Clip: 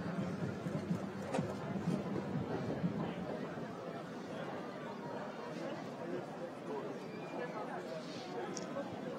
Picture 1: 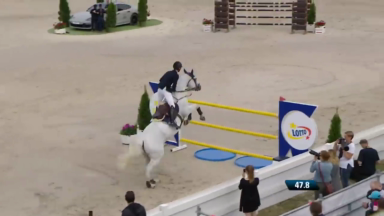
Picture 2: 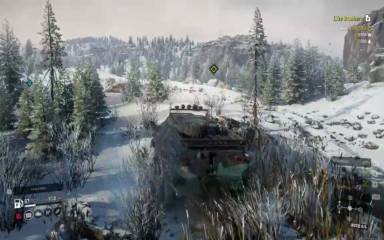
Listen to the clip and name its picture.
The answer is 1